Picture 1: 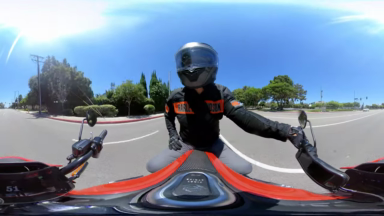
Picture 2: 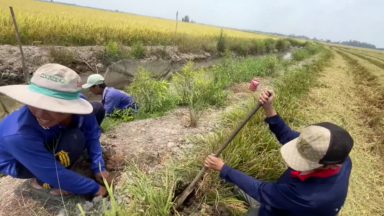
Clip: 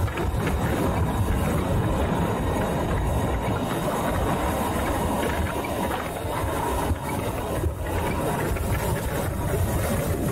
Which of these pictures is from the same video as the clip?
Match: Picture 1